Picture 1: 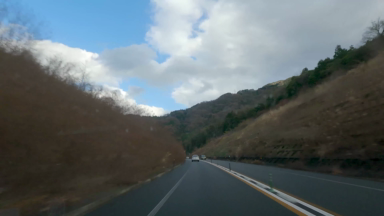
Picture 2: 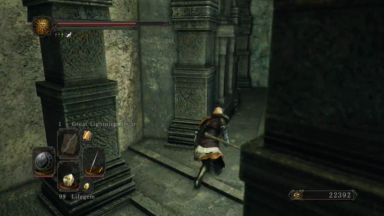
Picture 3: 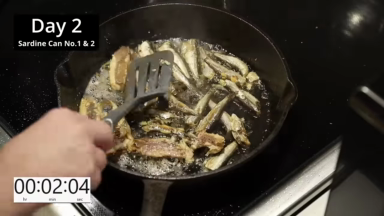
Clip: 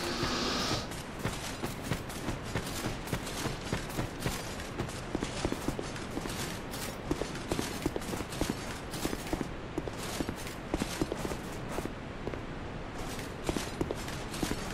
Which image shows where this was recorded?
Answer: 2